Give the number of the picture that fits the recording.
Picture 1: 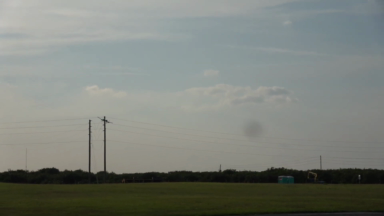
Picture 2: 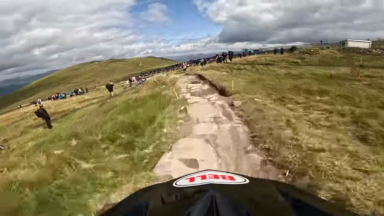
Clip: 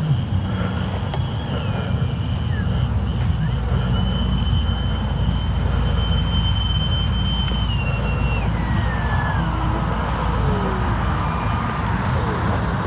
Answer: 1